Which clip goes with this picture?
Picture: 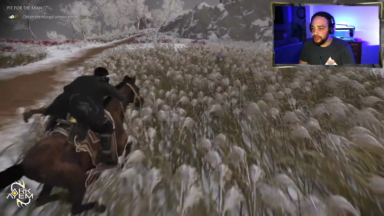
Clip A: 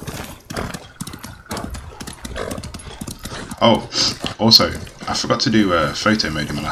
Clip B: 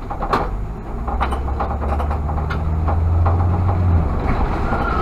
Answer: A